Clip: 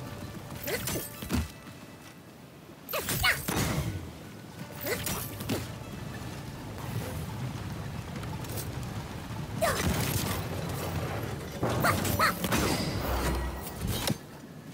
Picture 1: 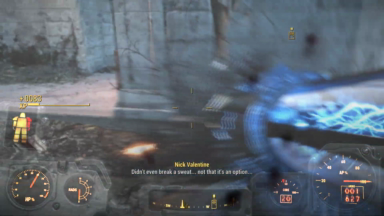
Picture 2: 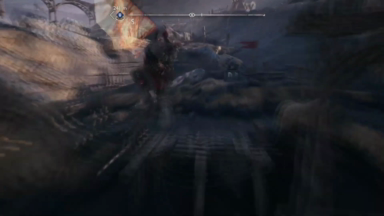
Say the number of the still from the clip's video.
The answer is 2